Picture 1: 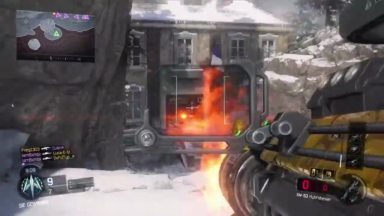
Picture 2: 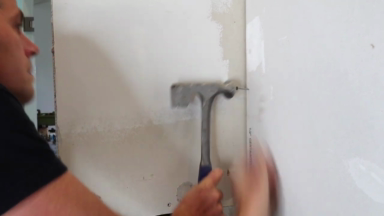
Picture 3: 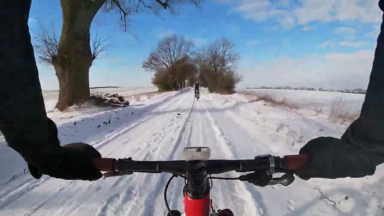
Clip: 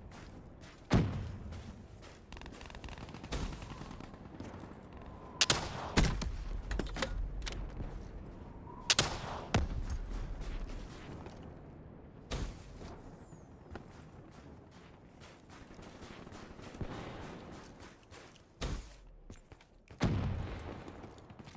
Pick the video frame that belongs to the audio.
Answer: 1